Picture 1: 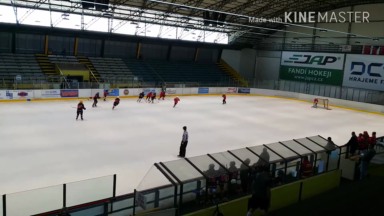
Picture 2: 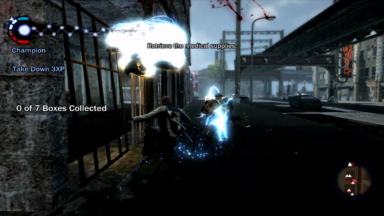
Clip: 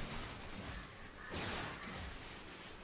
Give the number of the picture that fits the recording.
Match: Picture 2